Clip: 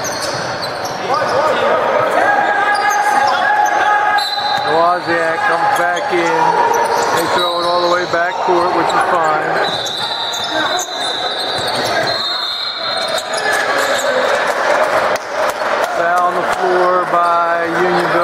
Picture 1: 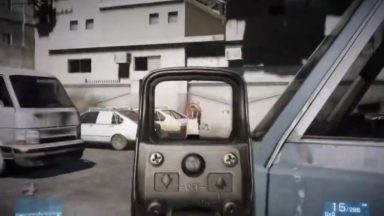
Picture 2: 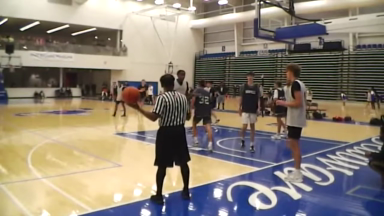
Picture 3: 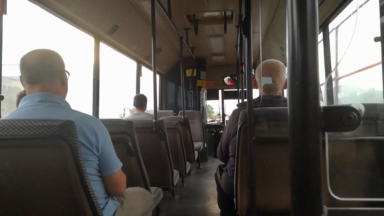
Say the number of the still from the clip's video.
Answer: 2